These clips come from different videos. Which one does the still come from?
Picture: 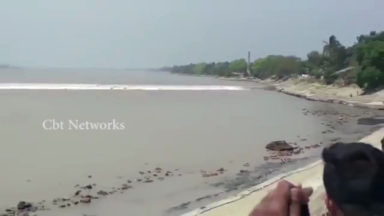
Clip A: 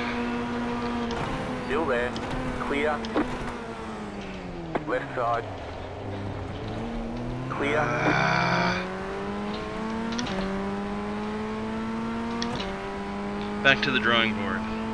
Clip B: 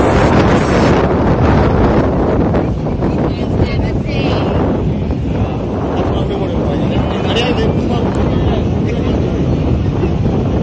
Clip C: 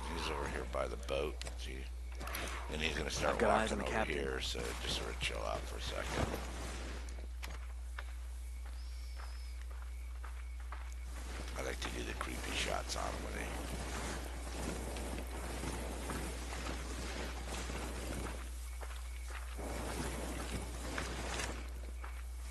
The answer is B